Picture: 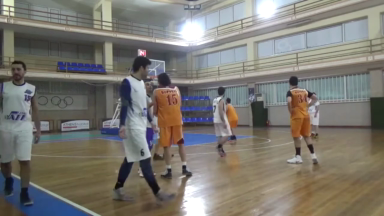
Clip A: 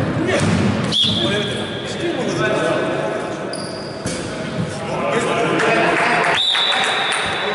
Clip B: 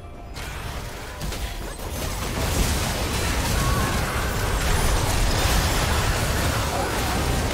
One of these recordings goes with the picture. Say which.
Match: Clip A